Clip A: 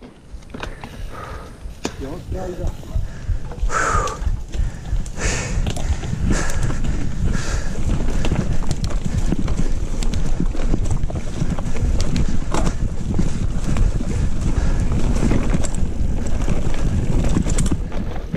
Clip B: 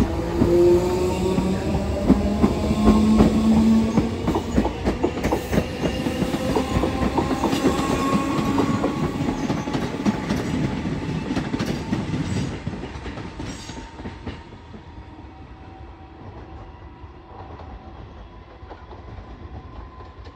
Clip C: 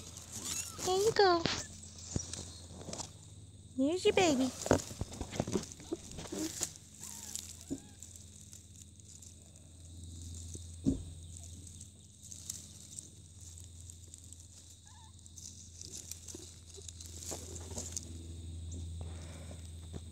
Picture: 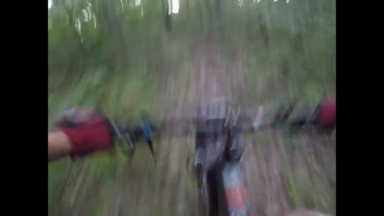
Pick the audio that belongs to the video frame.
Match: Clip A